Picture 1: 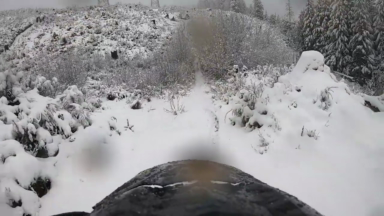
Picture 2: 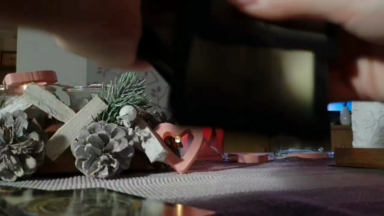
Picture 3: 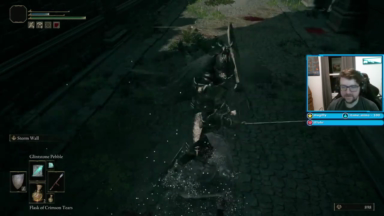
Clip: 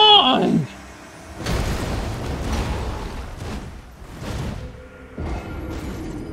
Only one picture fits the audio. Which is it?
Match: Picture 3